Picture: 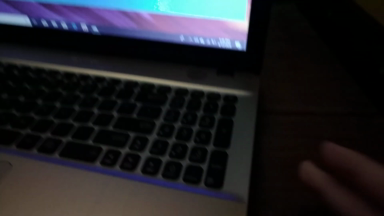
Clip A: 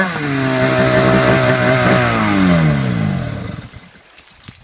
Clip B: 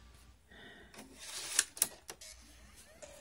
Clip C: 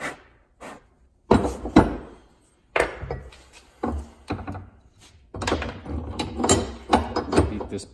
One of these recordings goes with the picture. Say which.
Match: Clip B